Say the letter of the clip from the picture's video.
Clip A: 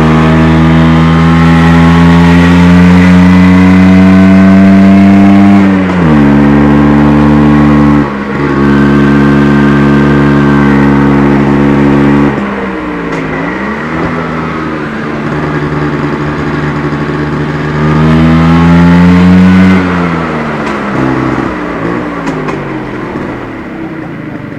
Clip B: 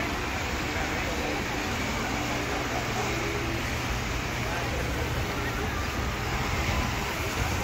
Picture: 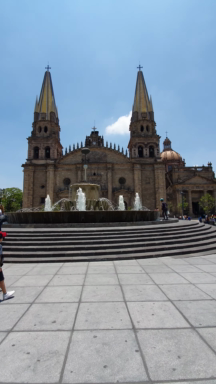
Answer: B